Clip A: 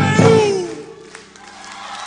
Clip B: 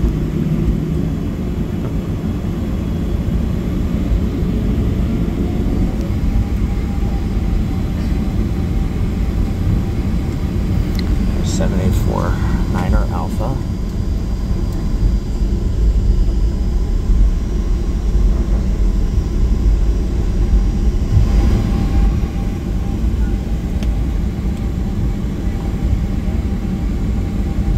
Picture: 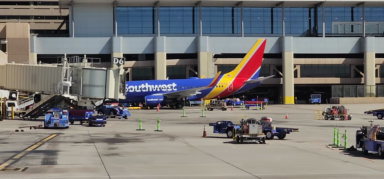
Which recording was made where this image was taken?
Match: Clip B